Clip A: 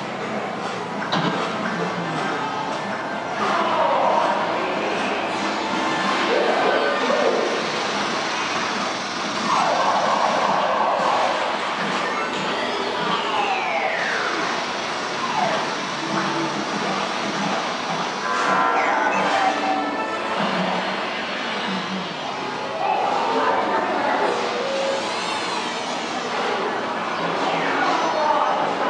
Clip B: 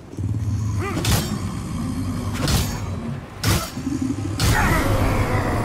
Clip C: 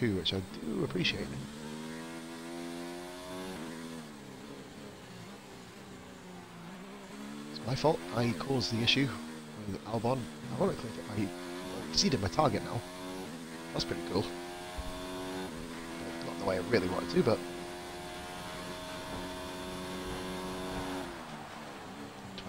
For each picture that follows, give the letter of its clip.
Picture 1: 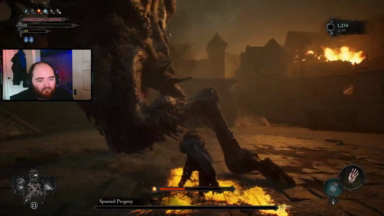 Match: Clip B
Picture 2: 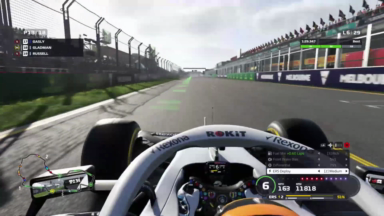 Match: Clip C